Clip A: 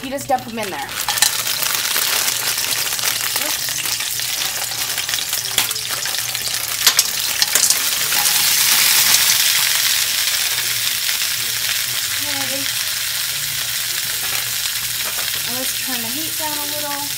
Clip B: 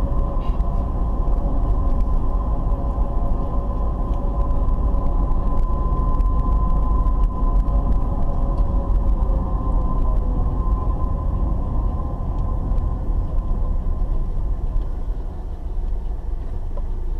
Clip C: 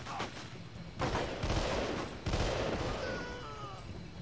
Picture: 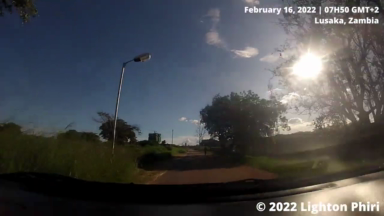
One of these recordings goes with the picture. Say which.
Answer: B